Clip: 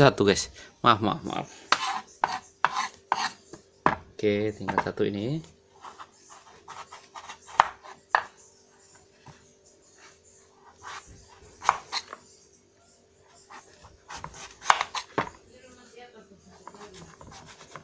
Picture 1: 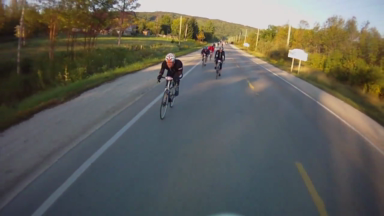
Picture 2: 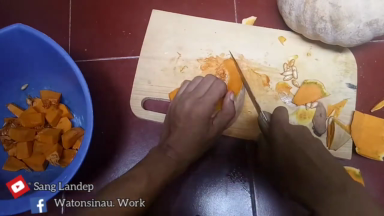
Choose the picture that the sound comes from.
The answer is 2